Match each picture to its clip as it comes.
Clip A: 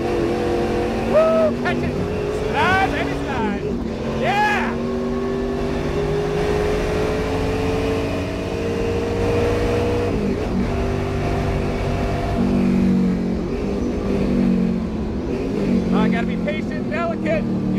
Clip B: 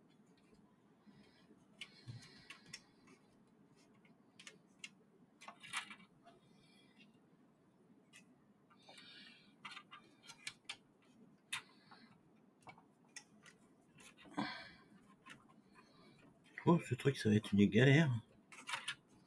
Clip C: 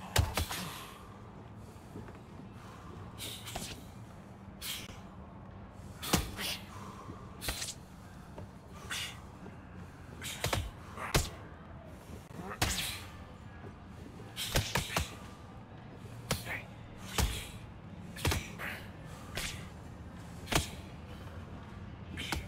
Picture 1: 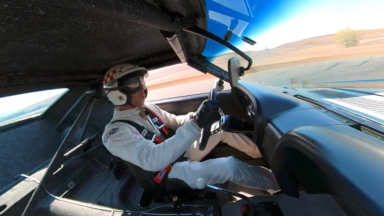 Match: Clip A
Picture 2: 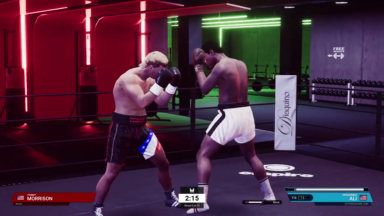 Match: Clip C